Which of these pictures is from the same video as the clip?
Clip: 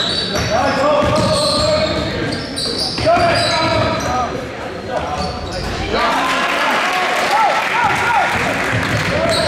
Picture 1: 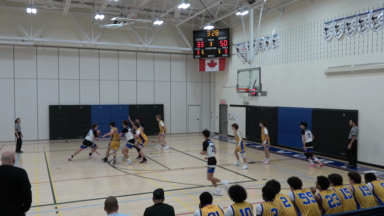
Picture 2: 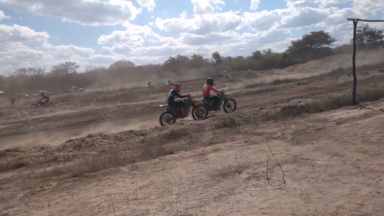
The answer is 1